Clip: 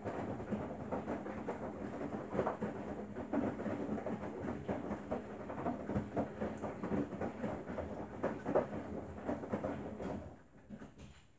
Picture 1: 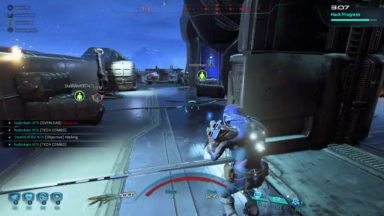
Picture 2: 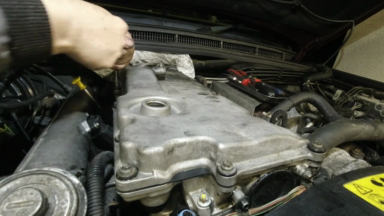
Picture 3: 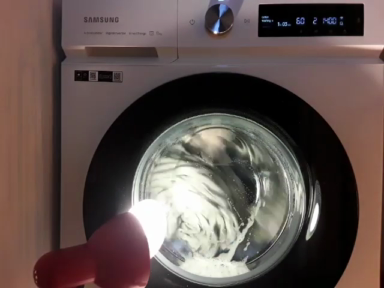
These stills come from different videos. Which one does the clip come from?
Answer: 3